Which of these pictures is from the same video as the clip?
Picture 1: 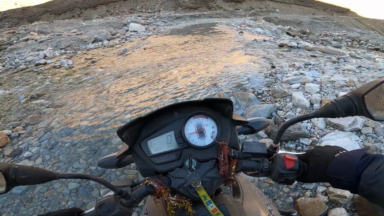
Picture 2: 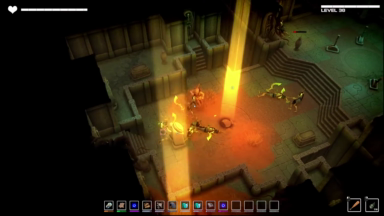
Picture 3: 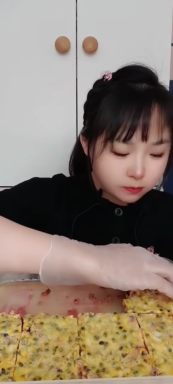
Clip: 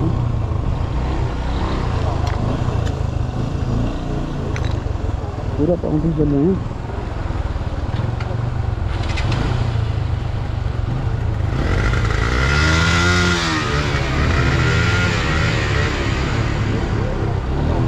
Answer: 1